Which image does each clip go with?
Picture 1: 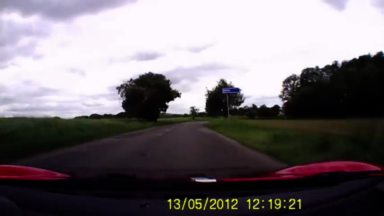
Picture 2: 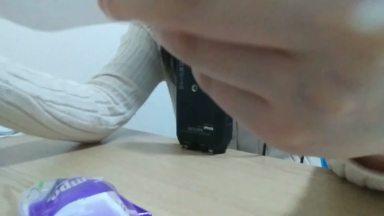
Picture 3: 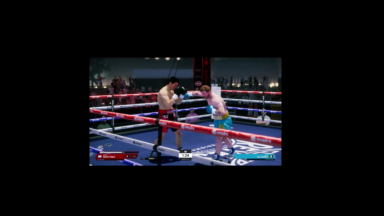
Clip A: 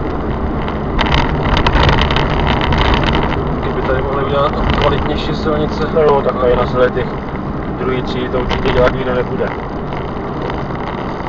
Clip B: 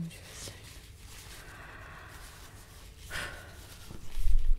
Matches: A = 1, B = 2